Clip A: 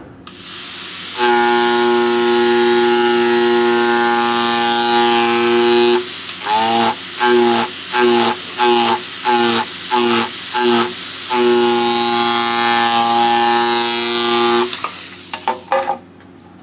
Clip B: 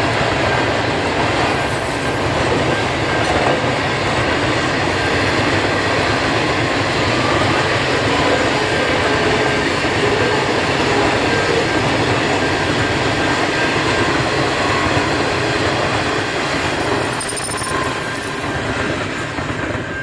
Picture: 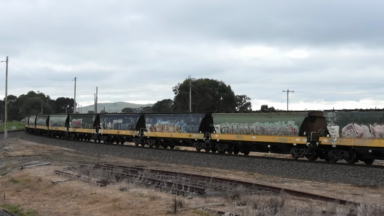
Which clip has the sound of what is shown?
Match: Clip B